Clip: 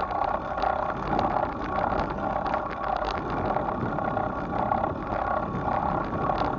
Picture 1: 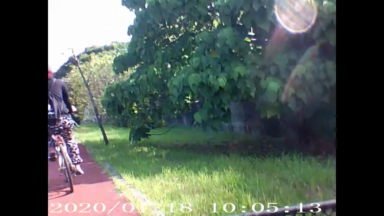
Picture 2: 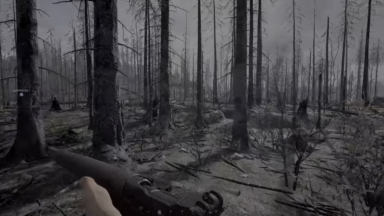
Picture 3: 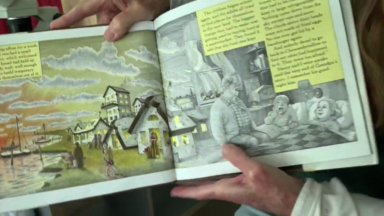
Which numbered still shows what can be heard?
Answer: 1